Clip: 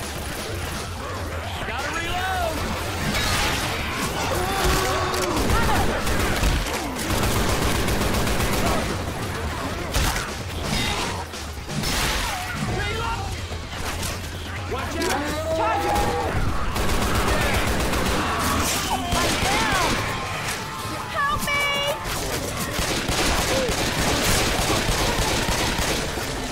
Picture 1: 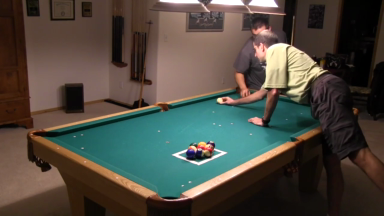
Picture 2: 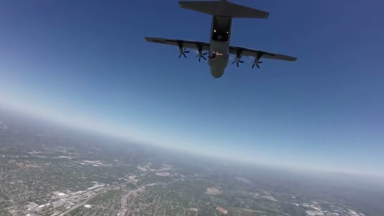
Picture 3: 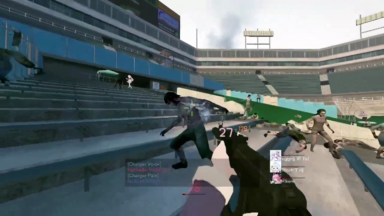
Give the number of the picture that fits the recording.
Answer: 3